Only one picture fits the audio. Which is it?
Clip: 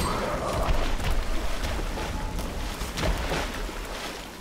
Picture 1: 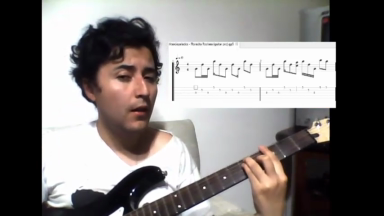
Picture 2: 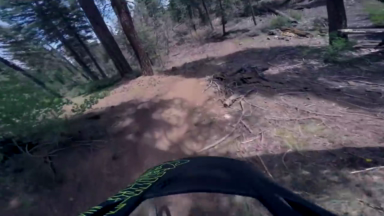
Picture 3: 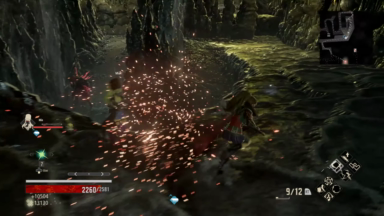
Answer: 3